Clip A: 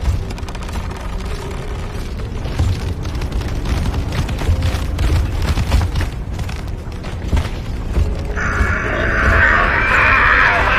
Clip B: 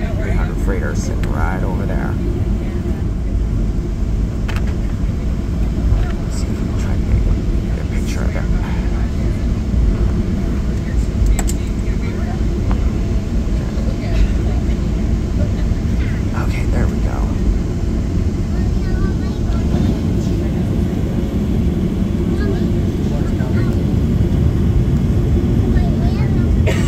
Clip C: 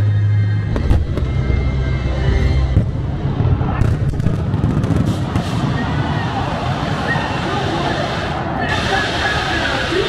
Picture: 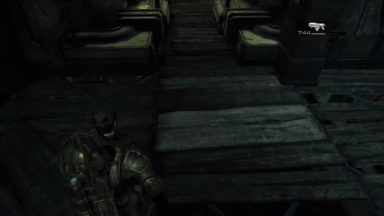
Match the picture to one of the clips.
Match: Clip A